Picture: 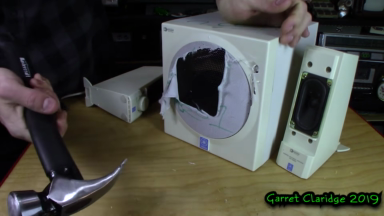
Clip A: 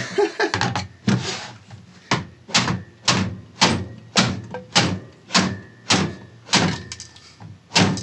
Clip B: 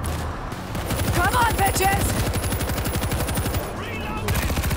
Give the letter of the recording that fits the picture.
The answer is A